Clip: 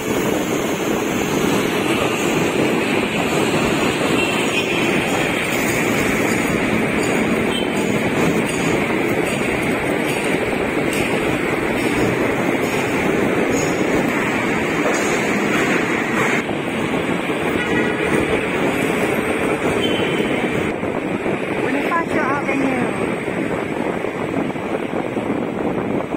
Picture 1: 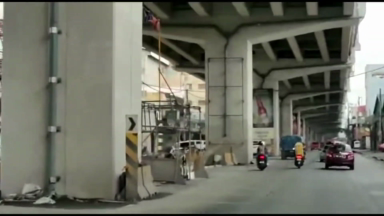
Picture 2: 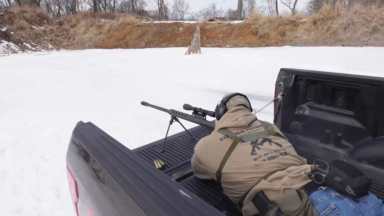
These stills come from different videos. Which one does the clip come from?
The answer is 1